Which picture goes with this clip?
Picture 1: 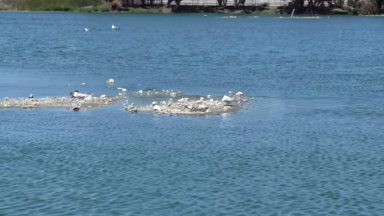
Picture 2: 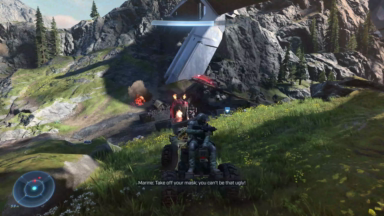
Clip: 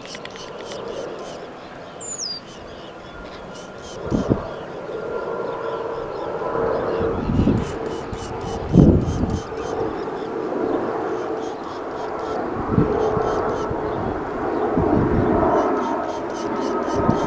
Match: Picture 1